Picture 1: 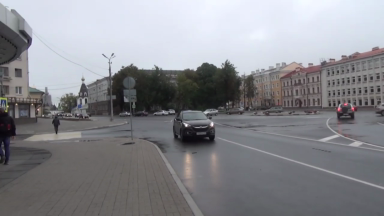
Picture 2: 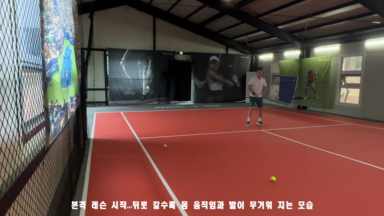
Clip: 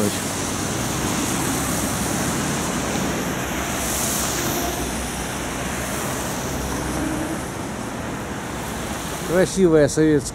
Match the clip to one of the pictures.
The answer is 1